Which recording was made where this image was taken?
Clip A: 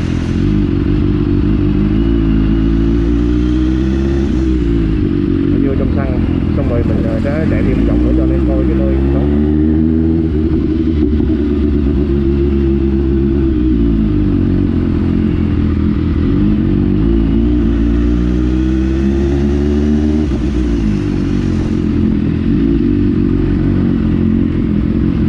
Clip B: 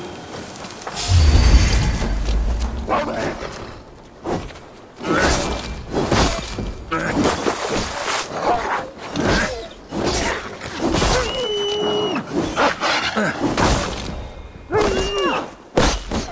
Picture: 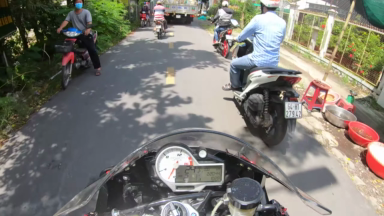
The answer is A